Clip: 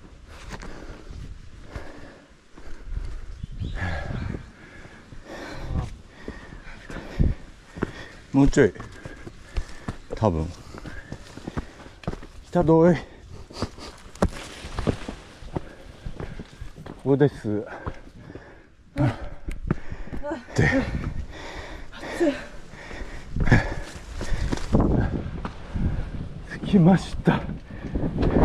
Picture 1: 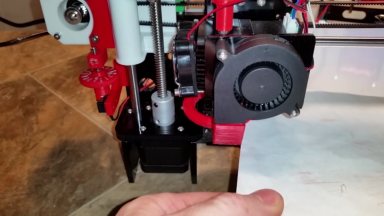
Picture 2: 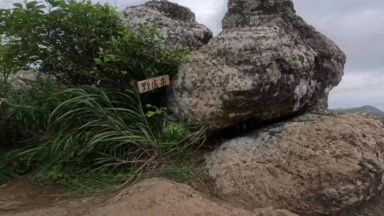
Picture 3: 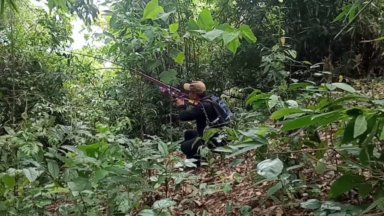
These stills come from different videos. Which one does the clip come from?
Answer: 2